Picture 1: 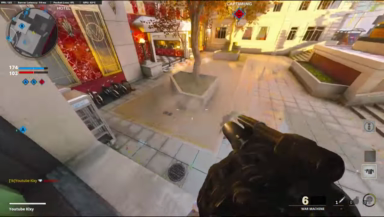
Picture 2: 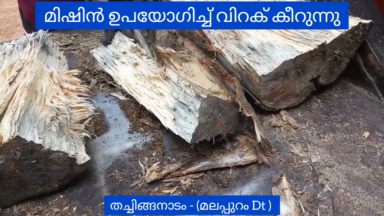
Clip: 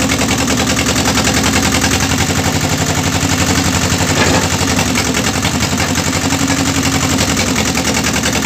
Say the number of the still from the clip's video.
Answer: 2